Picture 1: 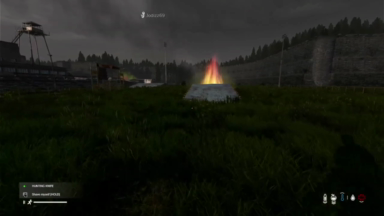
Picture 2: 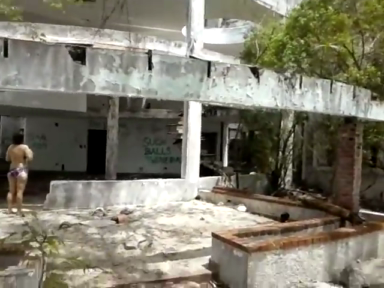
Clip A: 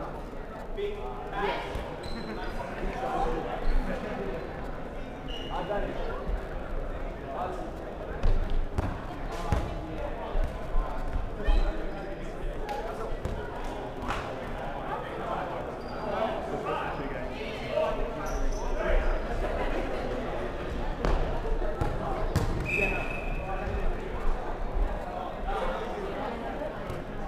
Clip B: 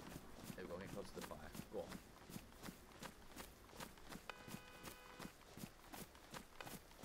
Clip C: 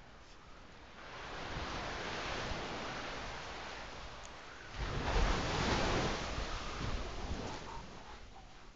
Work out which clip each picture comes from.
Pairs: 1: B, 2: C